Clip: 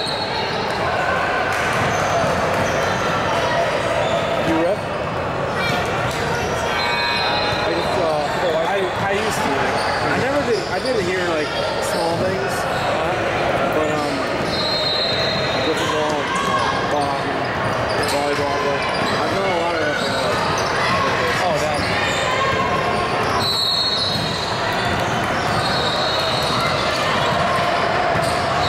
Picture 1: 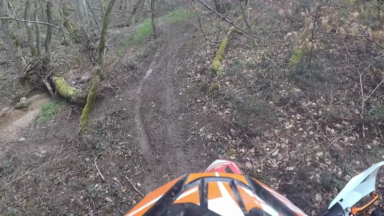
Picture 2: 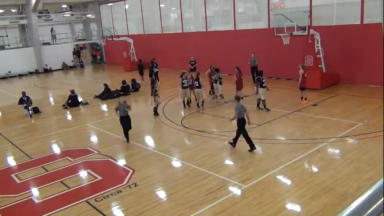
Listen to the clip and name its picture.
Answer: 2